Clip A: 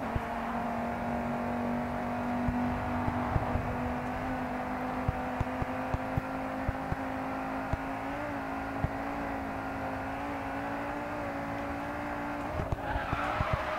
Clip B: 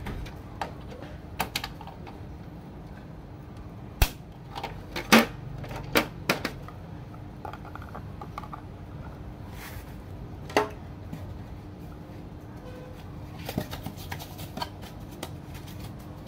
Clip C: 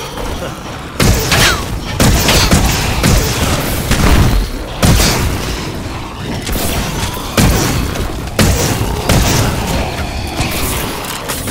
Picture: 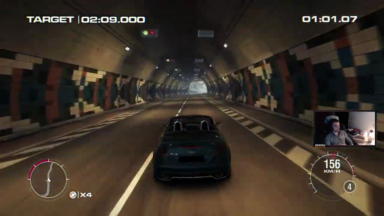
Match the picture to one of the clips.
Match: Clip A